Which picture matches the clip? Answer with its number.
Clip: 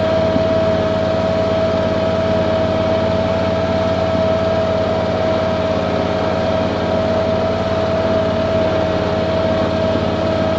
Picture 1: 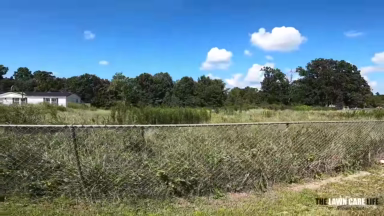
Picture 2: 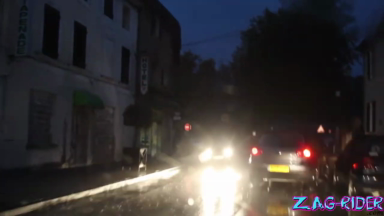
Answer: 1